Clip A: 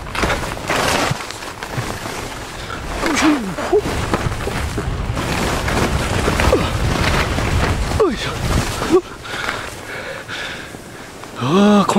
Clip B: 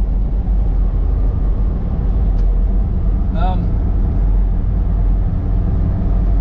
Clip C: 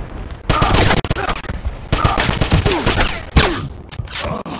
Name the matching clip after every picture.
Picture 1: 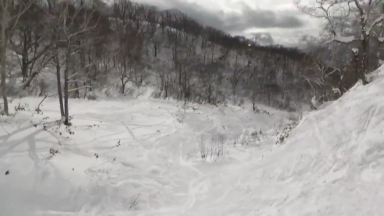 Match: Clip A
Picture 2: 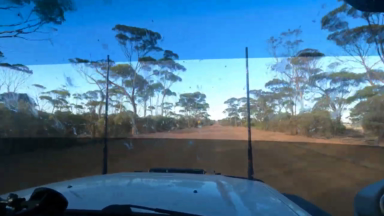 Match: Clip B